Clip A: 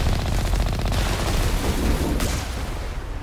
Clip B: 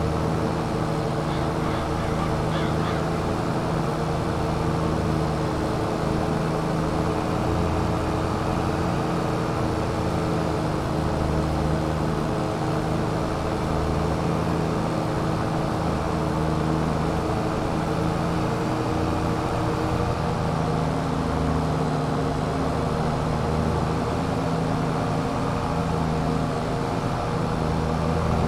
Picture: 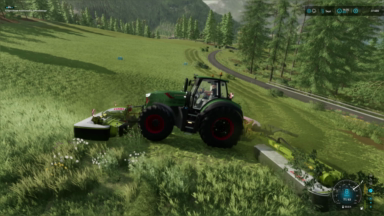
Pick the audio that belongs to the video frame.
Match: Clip B